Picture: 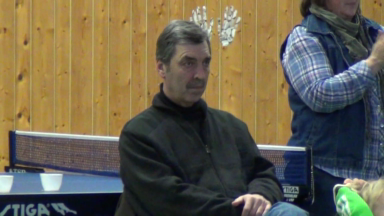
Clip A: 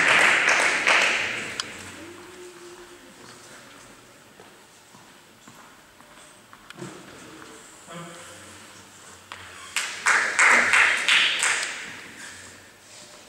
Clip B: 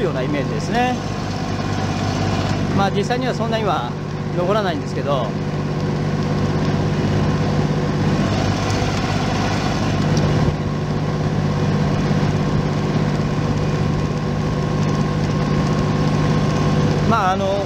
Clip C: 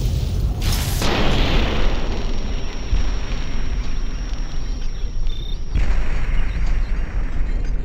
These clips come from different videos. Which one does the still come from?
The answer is A